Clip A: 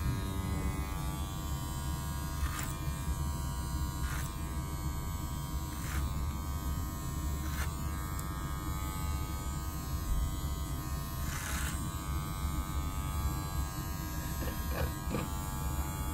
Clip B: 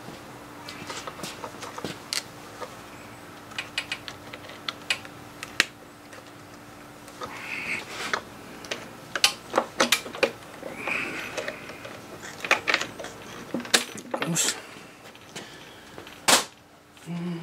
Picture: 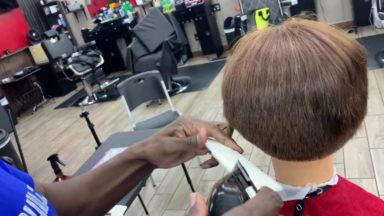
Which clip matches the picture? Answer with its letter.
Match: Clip A